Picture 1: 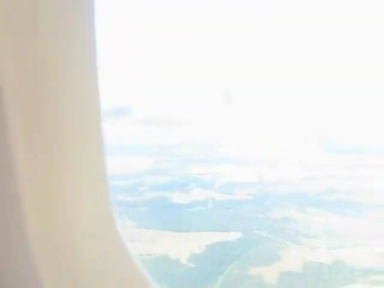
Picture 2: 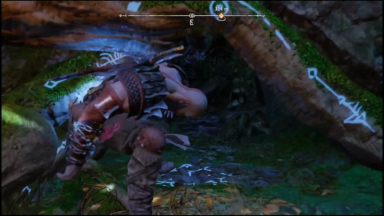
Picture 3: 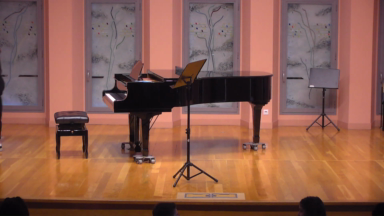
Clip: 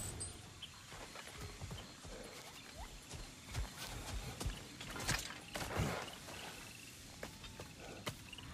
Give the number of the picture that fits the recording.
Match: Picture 2